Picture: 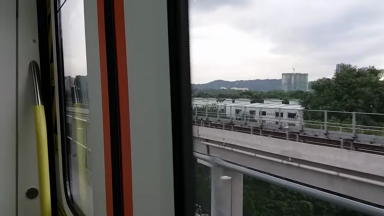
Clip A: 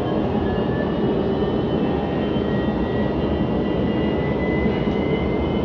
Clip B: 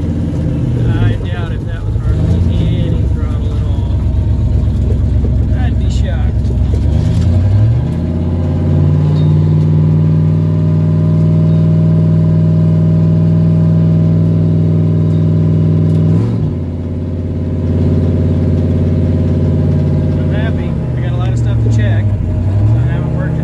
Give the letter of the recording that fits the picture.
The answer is A